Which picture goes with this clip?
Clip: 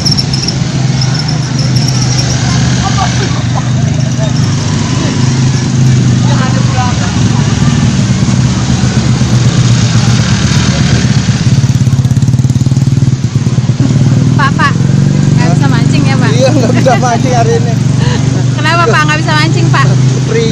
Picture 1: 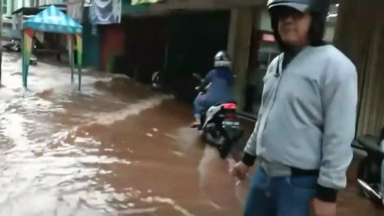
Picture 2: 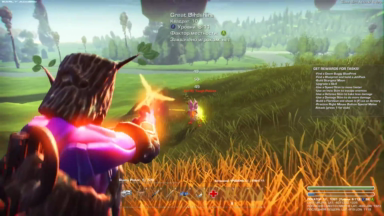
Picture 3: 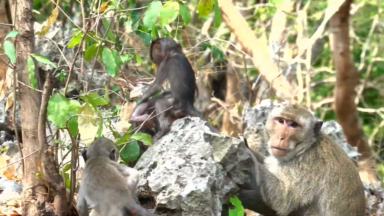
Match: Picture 1